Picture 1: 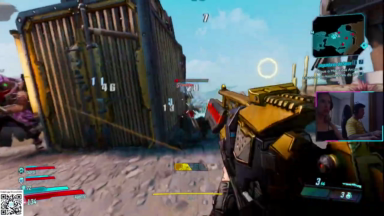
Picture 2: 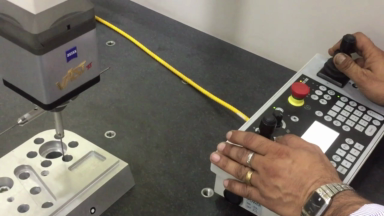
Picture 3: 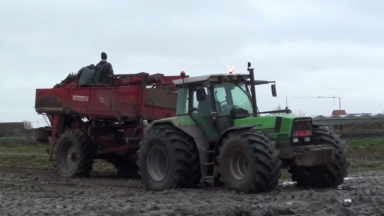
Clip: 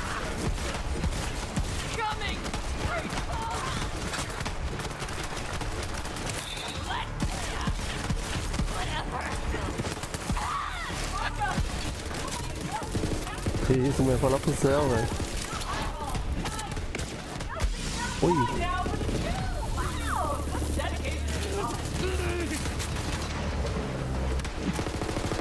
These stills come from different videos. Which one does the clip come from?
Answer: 1